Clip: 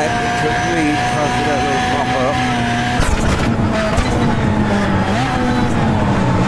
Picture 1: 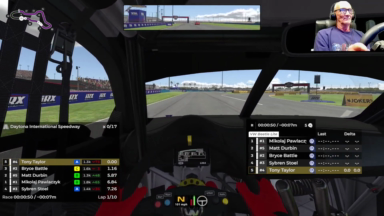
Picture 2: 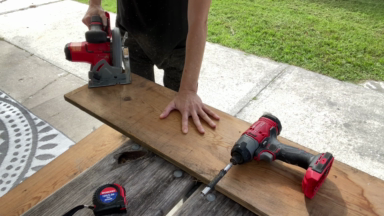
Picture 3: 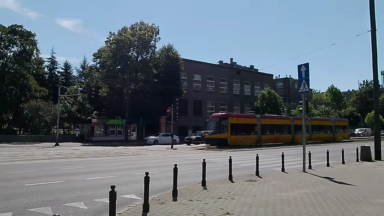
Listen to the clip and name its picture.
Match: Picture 1